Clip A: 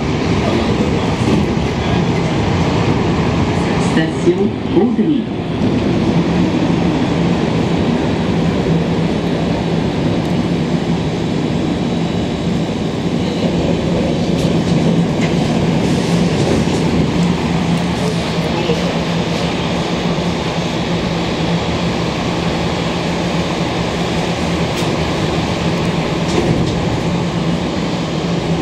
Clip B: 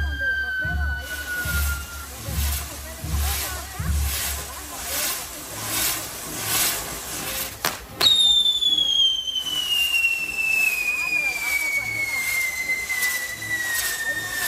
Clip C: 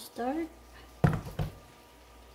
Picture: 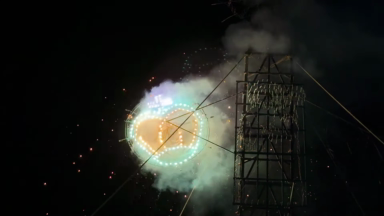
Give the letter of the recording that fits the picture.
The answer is B